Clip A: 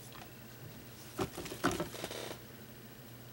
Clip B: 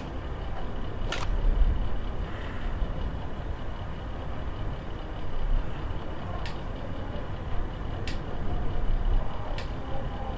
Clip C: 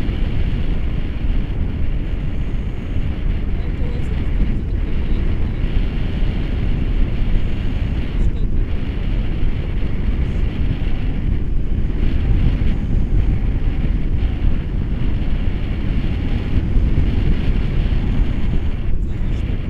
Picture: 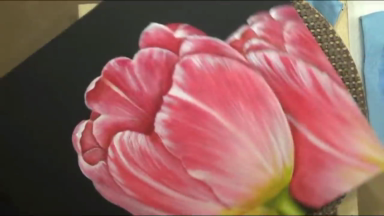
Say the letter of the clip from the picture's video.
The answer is A